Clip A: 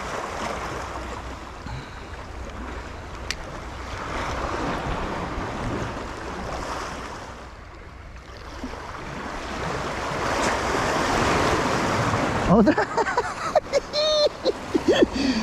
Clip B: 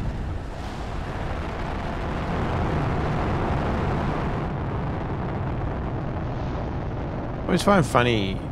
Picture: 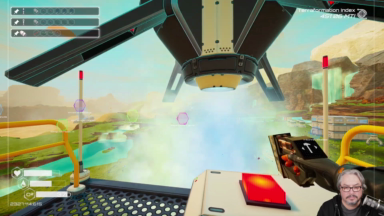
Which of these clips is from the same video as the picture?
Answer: B